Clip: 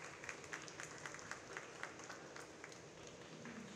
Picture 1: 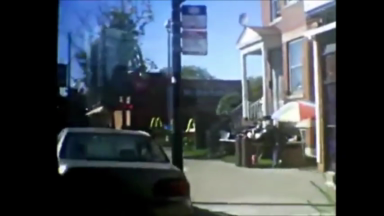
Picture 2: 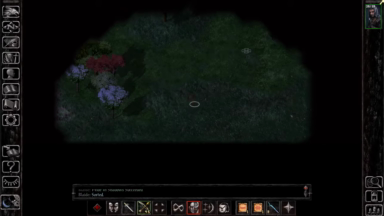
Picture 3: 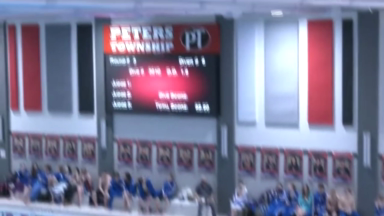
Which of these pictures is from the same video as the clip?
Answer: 3